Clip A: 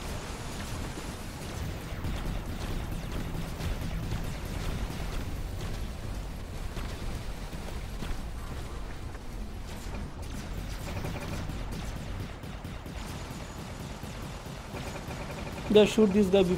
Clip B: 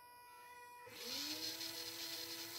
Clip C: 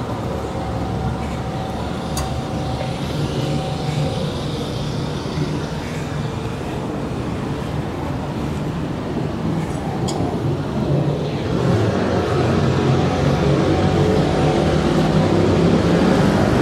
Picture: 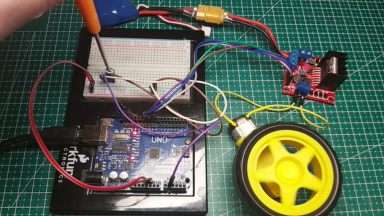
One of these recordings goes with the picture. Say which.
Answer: B